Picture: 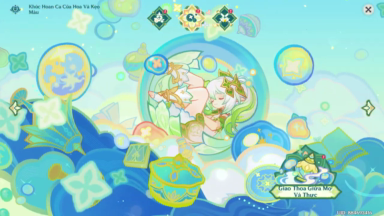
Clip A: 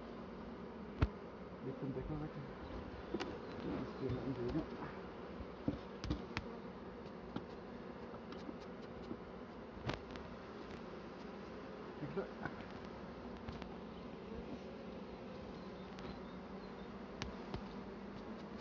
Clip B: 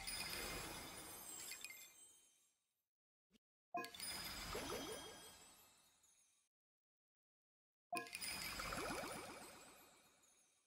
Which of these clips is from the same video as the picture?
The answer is B